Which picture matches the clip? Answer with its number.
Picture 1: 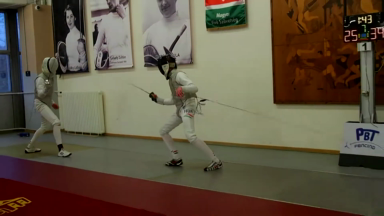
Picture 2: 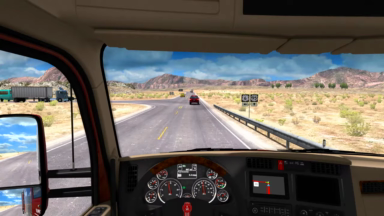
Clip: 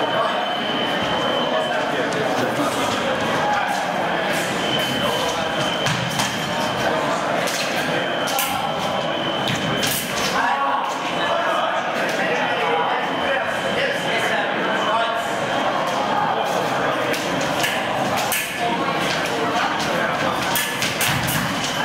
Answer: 1